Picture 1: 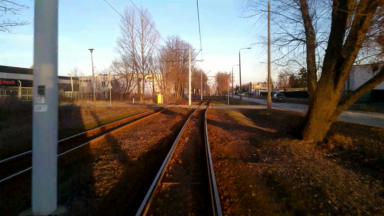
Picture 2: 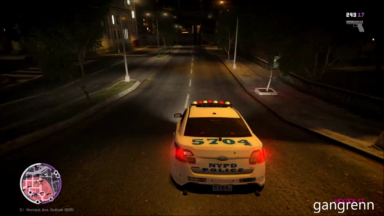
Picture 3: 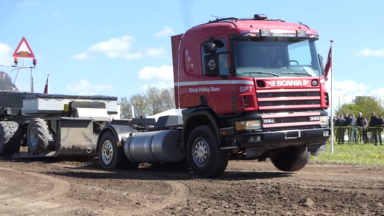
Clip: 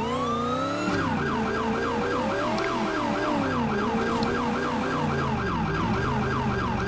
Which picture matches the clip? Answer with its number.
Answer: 2